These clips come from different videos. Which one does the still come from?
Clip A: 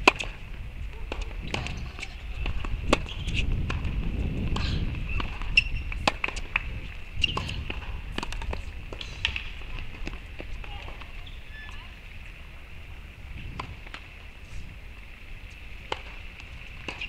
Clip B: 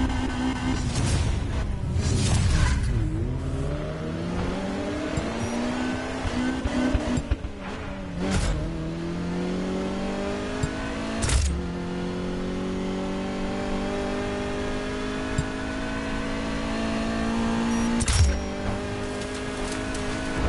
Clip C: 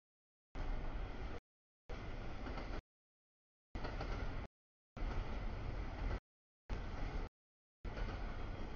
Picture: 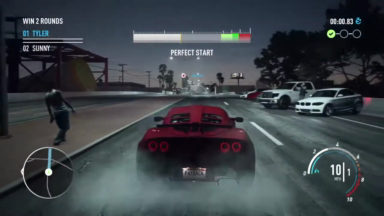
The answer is B